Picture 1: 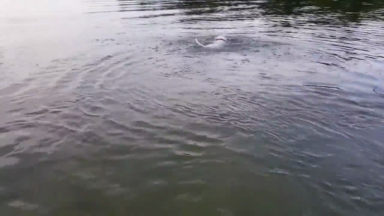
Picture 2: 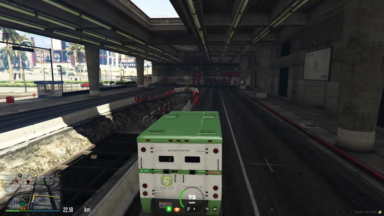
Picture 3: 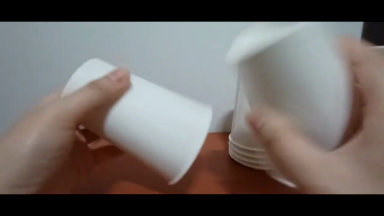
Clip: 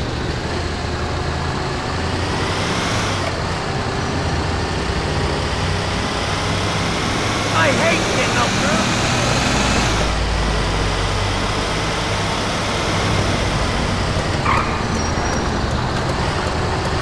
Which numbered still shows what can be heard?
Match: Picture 2